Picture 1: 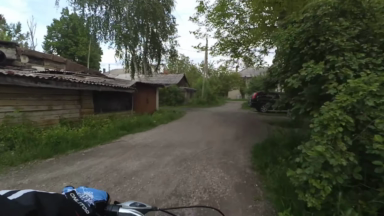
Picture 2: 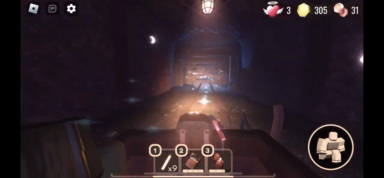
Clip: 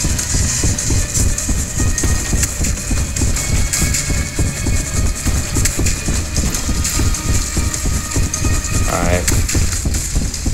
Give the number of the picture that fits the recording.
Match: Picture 2